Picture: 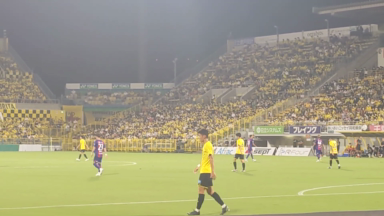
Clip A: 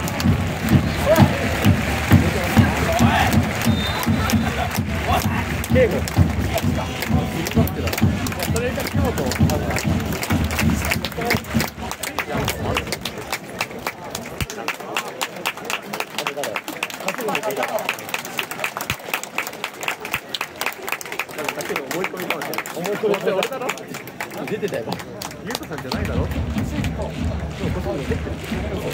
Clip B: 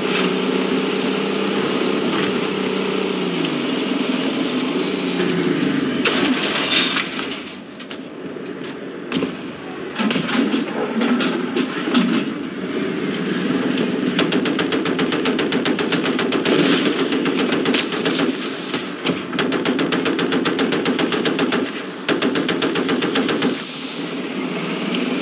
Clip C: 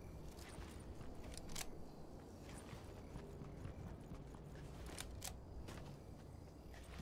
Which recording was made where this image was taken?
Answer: A